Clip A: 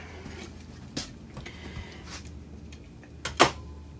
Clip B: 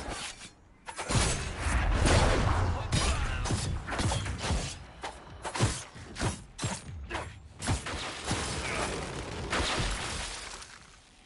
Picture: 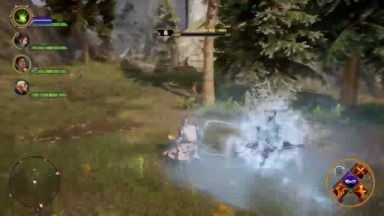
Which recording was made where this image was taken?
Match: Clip B